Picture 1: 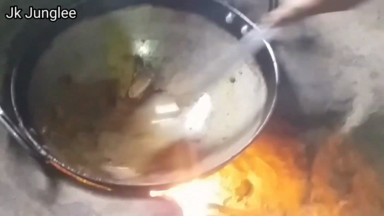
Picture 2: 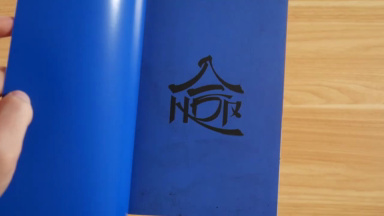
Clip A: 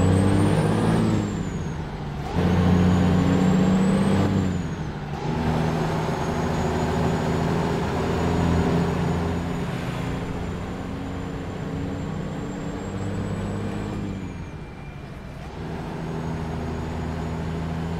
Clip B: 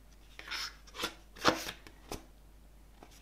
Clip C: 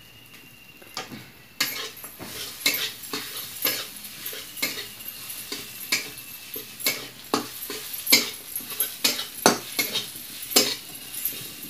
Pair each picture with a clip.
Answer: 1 C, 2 B